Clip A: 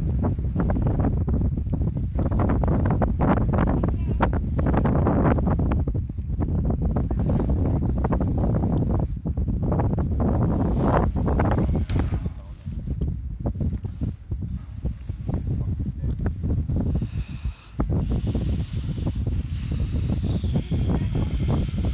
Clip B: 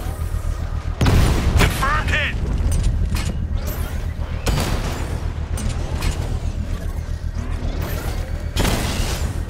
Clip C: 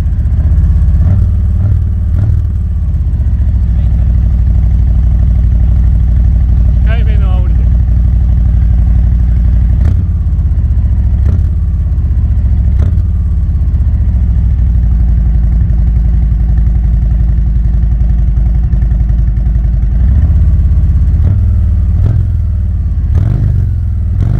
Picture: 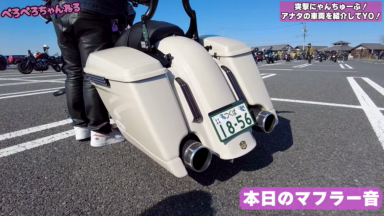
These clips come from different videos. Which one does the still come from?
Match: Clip C